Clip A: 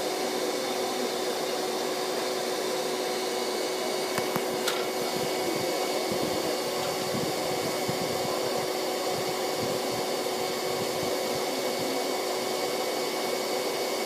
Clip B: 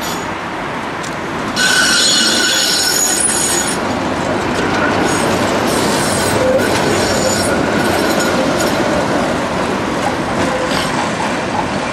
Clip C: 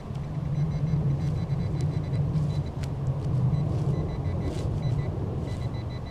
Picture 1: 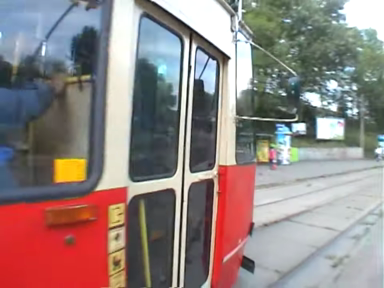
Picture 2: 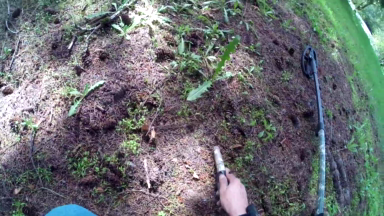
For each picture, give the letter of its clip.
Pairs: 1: B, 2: C